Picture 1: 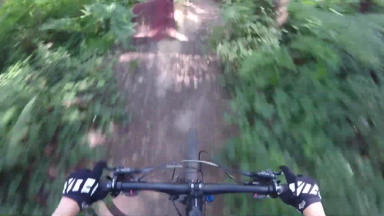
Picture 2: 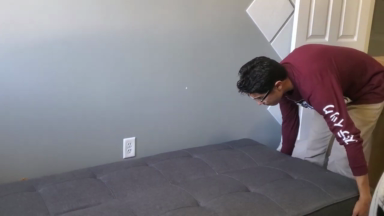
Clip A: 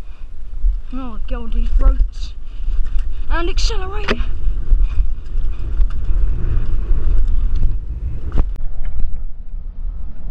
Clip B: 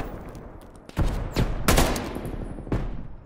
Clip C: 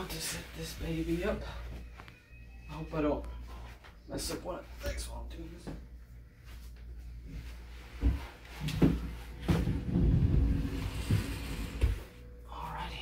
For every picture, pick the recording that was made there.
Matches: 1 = A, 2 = C